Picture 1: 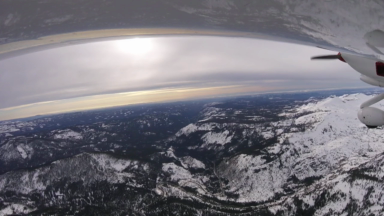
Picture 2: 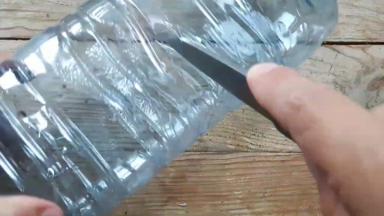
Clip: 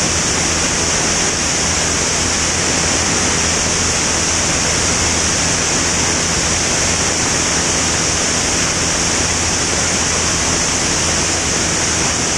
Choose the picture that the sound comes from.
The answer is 1